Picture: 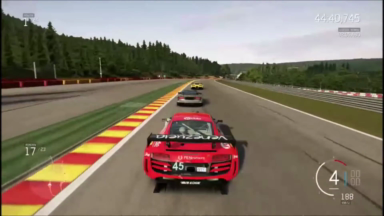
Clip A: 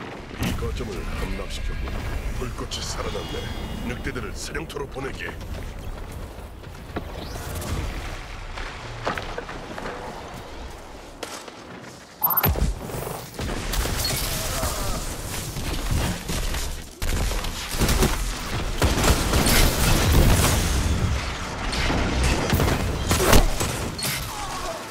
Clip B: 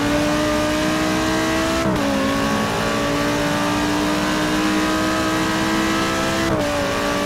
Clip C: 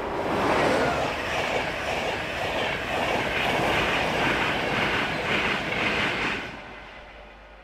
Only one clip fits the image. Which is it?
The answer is B